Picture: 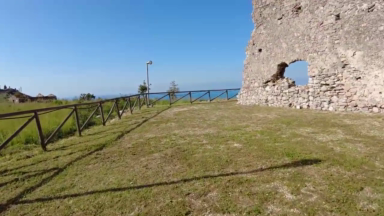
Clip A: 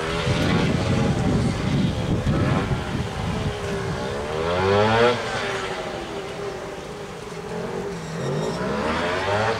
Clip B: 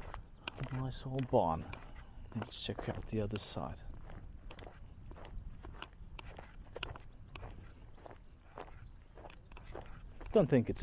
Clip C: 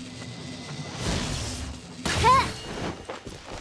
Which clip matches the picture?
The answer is B